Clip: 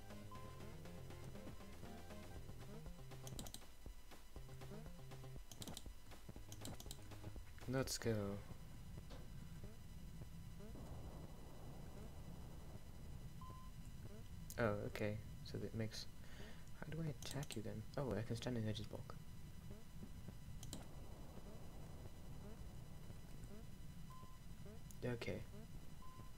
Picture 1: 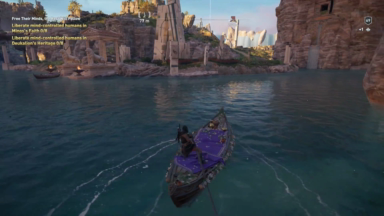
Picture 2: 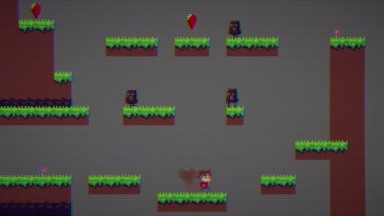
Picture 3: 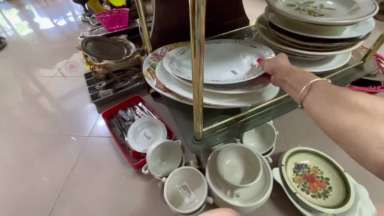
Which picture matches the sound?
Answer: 2